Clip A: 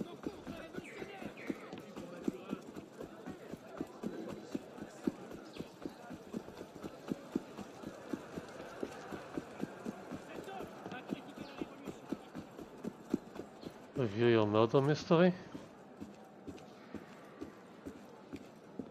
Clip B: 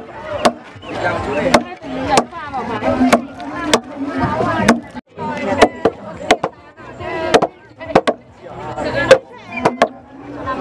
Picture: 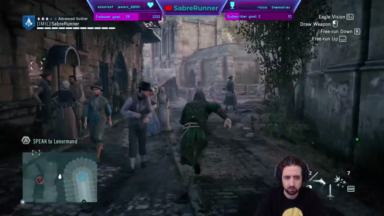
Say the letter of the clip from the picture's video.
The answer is A